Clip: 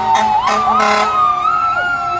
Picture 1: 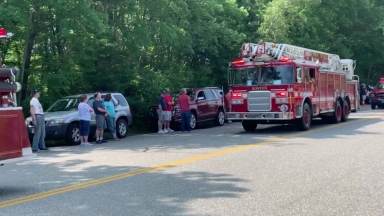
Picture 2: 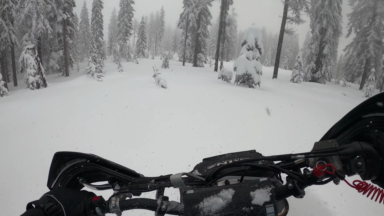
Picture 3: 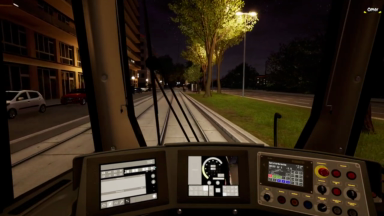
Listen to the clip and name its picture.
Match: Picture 1